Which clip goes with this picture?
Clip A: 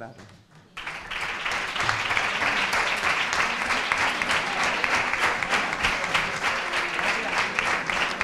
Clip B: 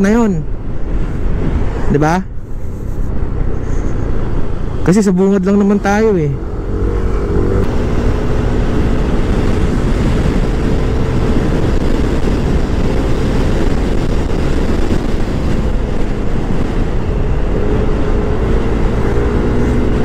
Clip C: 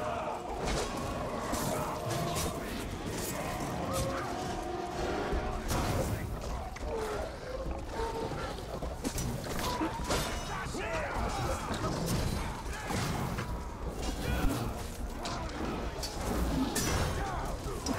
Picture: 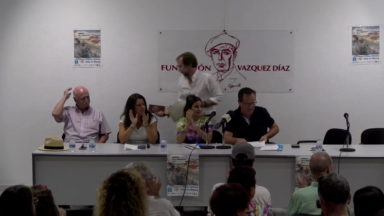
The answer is A